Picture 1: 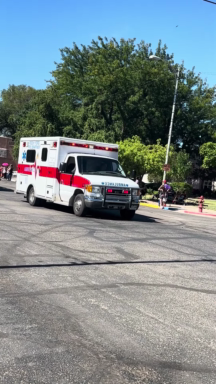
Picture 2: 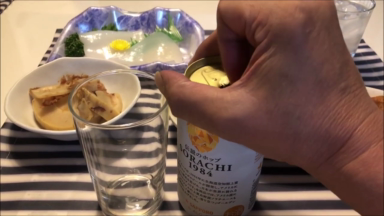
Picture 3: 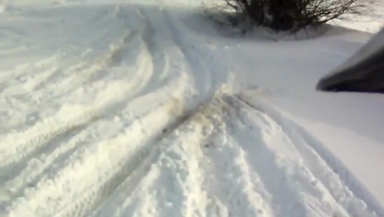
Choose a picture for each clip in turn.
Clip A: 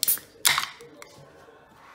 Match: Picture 2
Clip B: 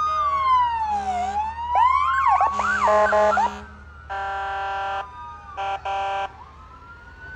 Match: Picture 1